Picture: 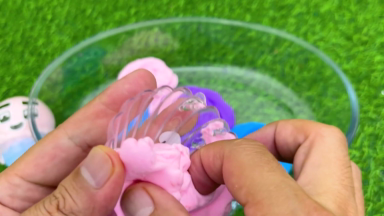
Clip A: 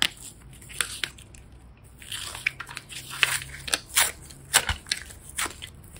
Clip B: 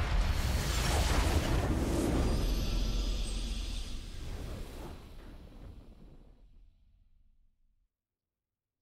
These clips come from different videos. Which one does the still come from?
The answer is A